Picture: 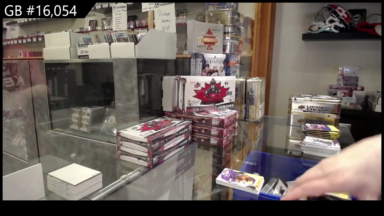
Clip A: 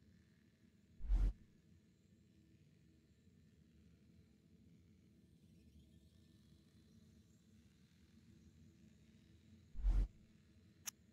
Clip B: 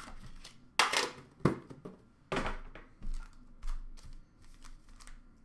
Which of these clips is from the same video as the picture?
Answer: B